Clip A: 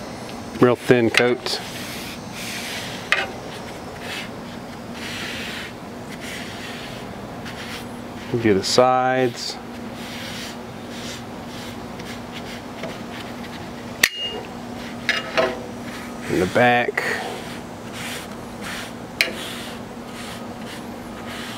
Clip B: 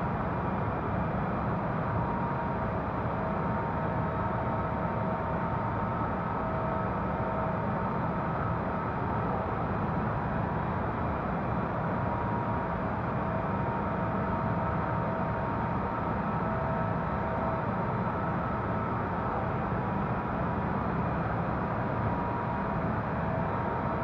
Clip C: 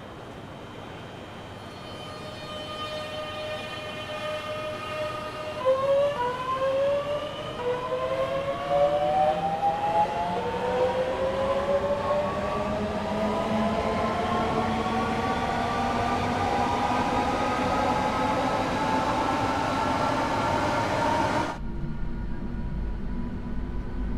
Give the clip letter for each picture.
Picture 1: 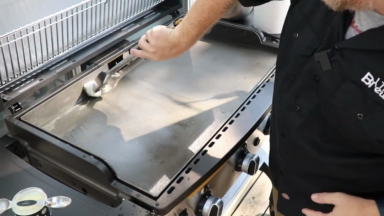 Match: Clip A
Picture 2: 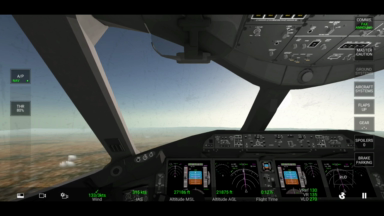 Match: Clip B